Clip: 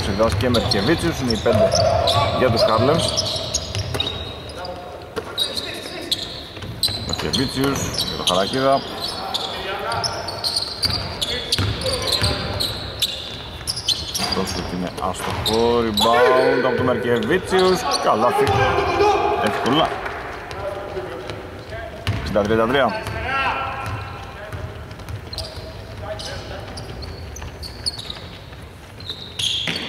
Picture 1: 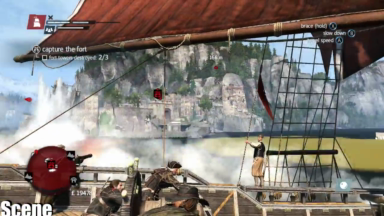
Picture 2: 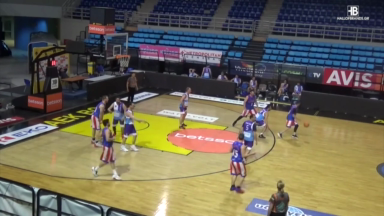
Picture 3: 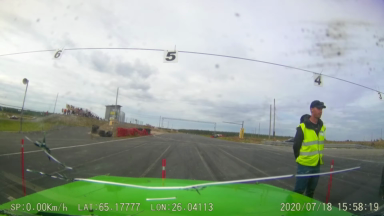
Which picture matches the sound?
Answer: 2